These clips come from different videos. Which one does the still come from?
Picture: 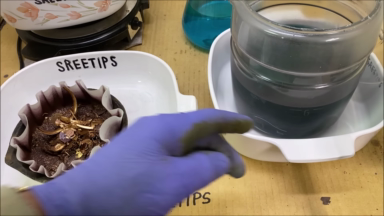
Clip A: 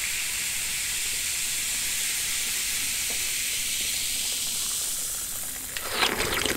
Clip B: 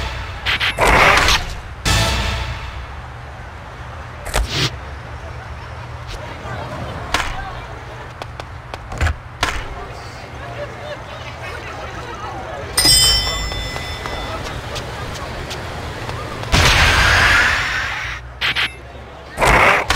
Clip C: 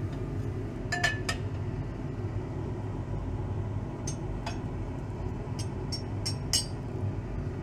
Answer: C